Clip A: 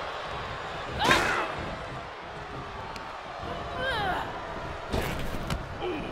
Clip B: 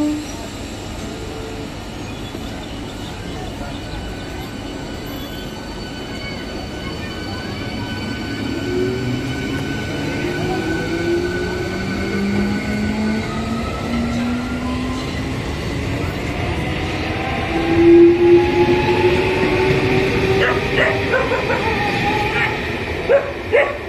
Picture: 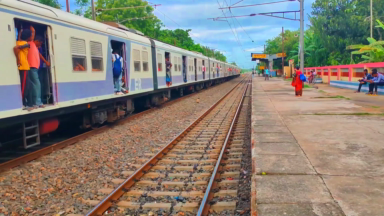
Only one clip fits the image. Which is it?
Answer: B